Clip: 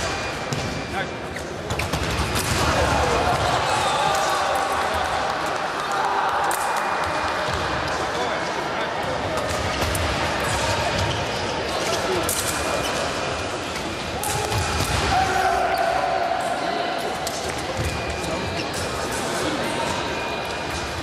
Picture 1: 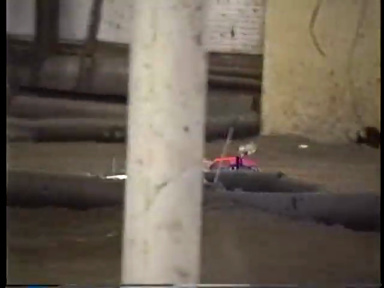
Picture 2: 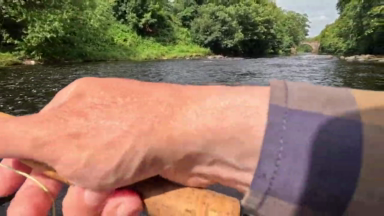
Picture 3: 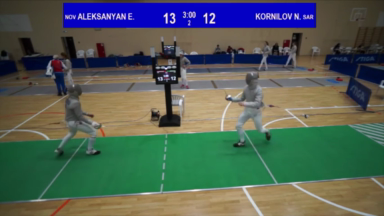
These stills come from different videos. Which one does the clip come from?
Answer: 3